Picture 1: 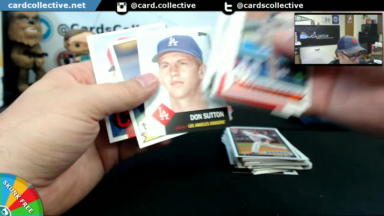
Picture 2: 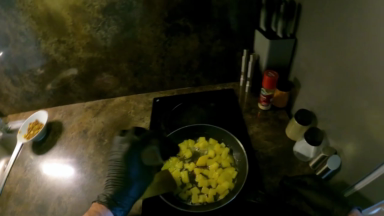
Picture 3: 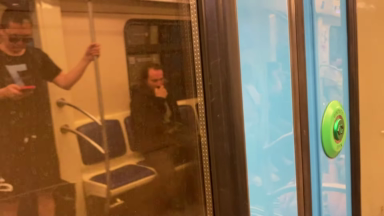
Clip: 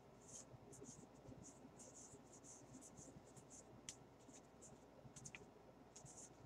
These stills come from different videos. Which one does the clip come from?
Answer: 1